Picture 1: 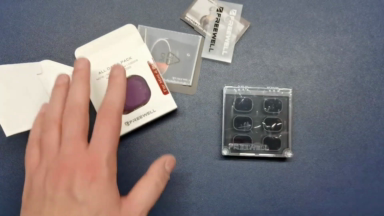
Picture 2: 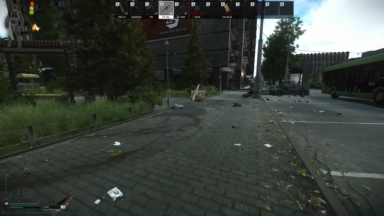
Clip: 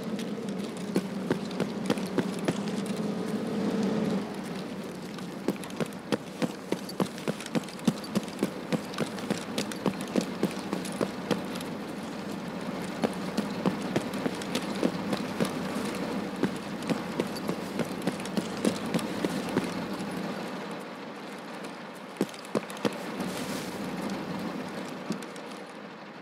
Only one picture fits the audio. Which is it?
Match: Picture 2